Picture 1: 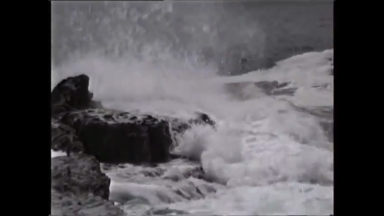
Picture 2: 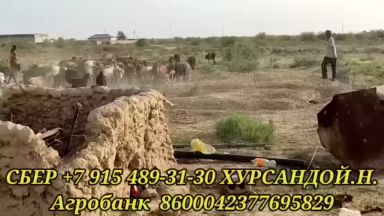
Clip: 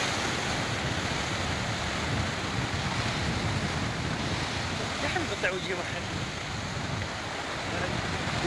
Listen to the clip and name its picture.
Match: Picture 1